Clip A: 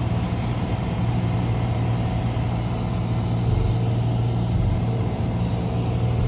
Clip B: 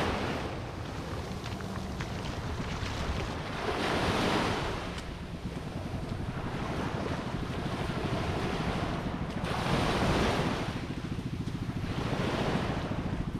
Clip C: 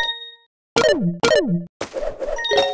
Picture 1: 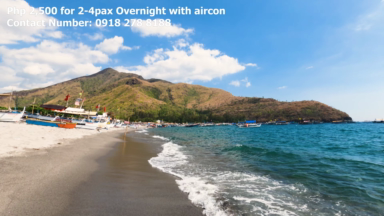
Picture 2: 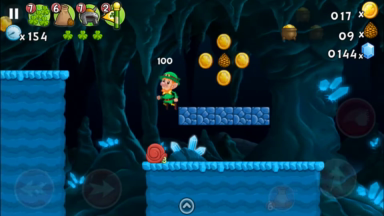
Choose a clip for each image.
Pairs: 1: B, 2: C